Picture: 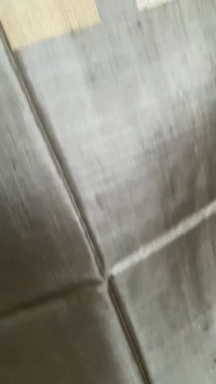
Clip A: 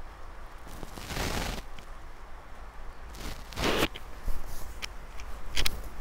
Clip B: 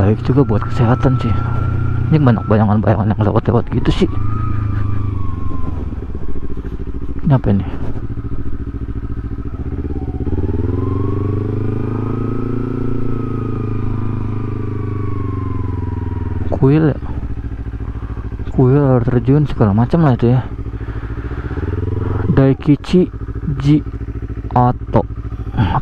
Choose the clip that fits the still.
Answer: A